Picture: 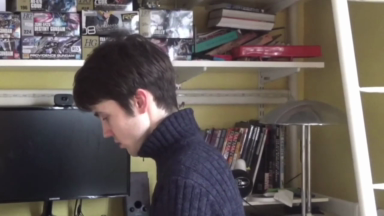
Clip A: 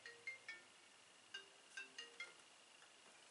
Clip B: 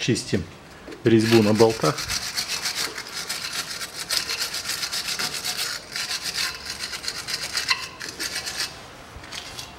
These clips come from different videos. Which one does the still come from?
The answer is A